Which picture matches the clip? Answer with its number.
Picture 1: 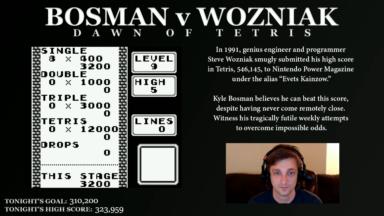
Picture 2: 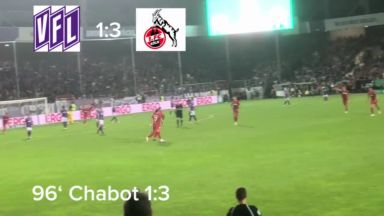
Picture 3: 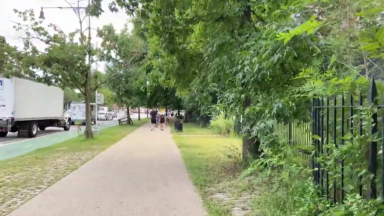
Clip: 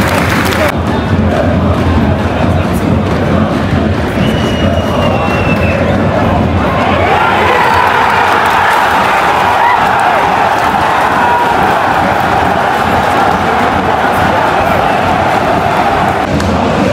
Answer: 2